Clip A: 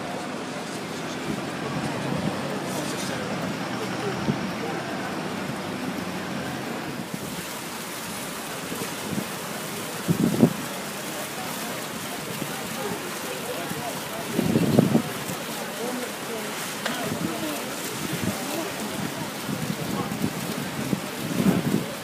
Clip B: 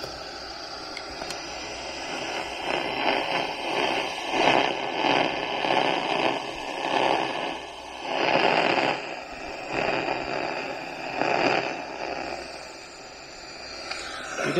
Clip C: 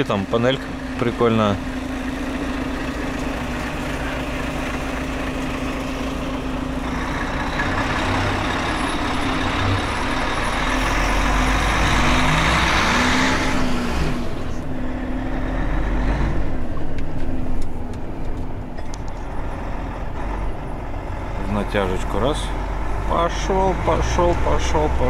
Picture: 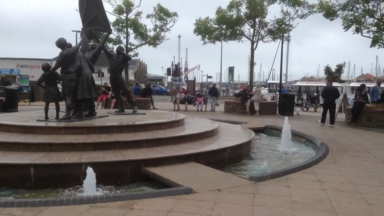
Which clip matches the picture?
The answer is A